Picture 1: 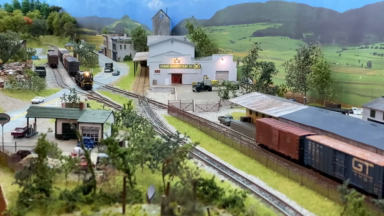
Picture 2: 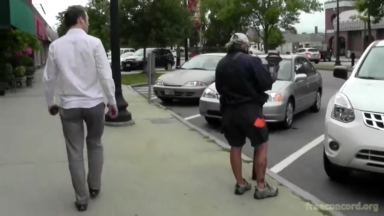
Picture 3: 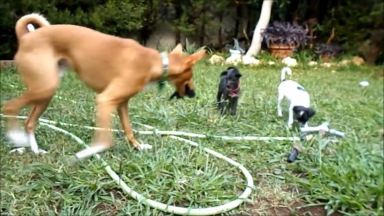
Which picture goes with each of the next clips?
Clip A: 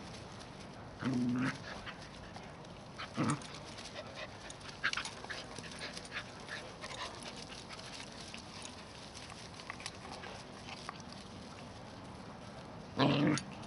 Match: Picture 3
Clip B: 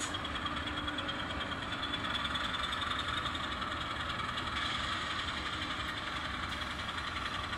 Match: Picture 1